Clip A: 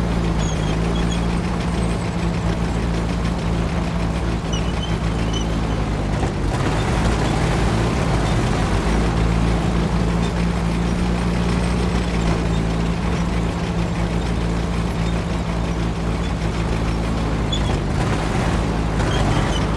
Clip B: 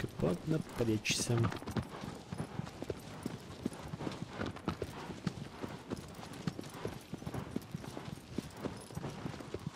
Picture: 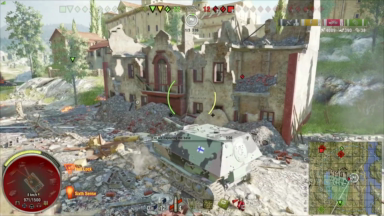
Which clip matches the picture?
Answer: A